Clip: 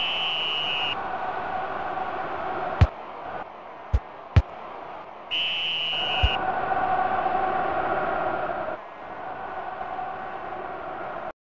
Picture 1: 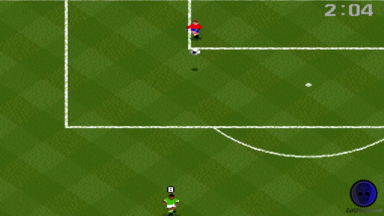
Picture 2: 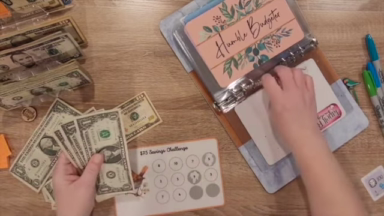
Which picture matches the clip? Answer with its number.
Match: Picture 1